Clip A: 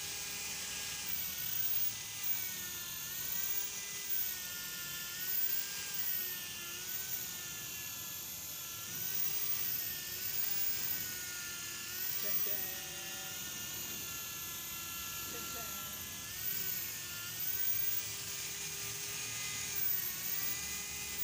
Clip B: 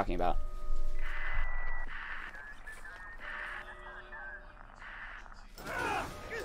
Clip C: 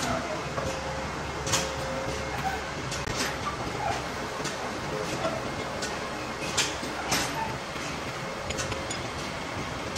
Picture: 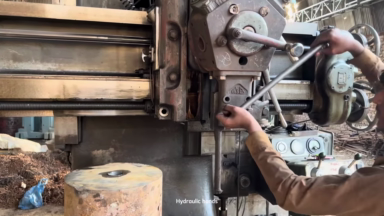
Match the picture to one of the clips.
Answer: C